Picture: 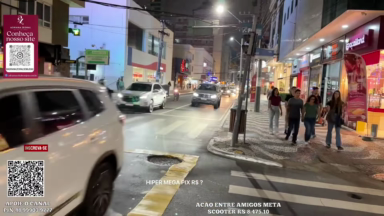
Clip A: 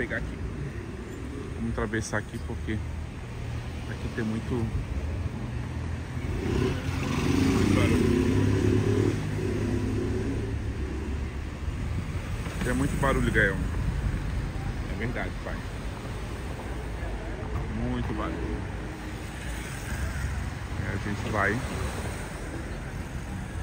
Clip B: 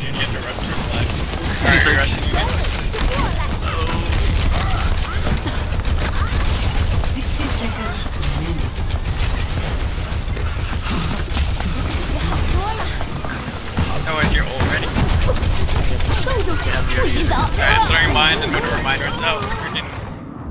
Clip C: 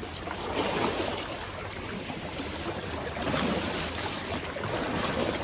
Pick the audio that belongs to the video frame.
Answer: A